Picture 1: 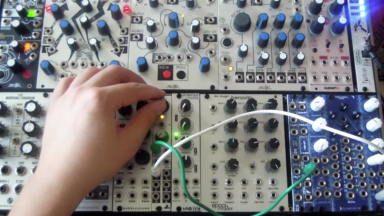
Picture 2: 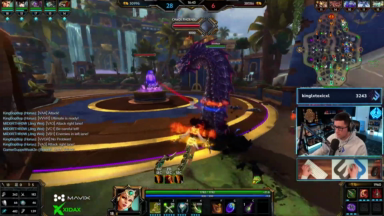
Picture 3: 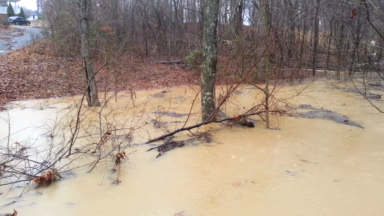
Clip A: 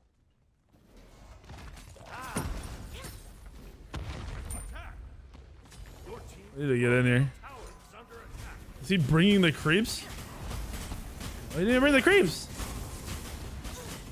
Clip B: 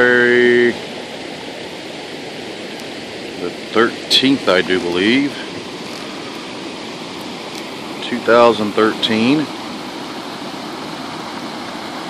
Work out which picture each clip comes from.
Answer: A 2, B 3